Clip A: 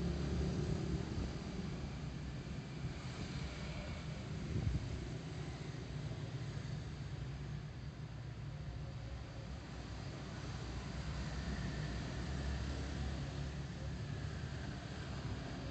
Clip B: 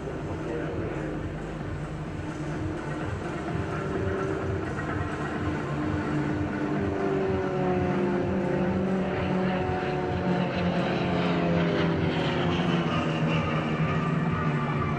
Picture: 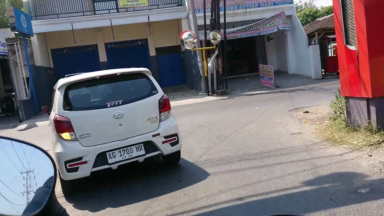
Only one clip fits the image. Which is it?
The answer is A